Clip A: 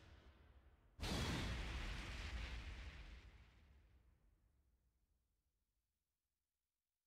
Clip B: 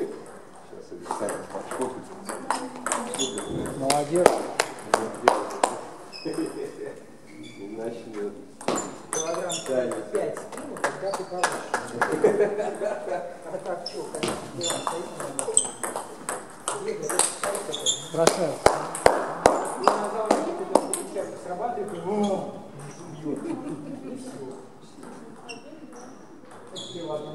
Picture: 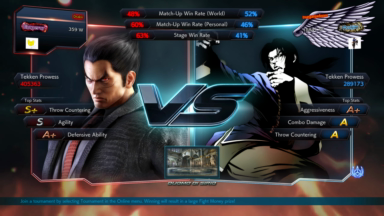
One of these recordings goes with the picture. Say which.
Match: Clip A